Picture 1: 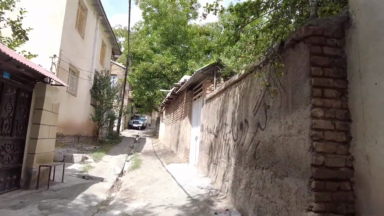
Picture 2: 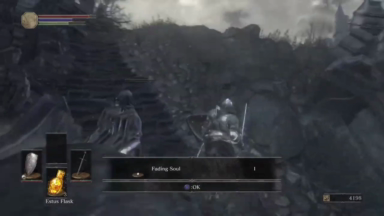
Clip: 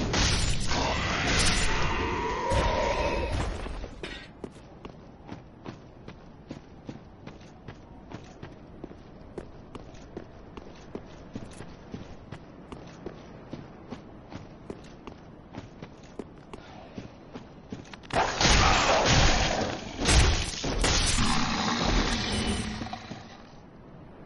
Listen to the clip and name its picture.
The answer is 2